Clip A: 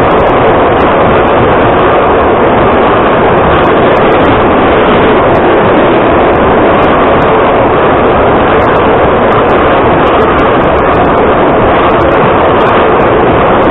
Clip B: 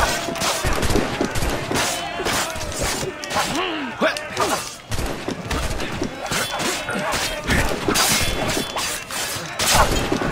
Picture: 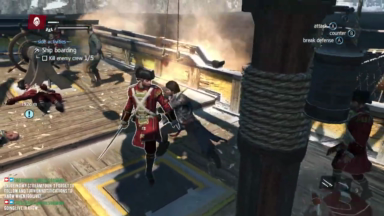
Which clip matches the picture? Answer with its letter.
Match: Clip B